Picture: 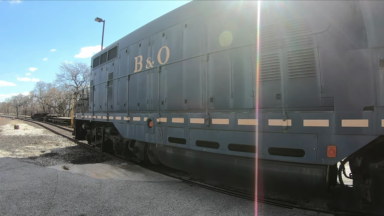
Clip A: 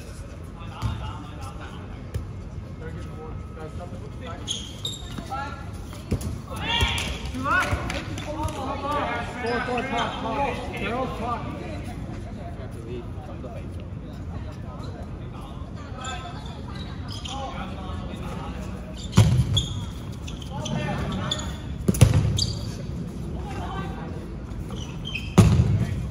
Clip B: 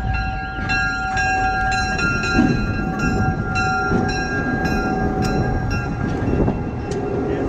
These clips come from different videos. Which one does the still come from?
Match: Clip B